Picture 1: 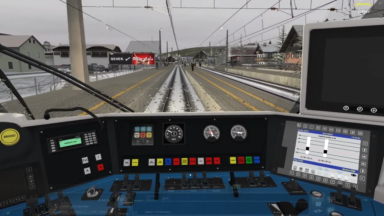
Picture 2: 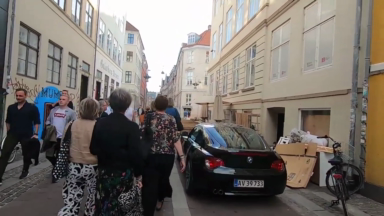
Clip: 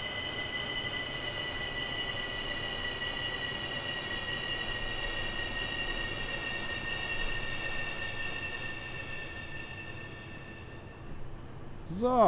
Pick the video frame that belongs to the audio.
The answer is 1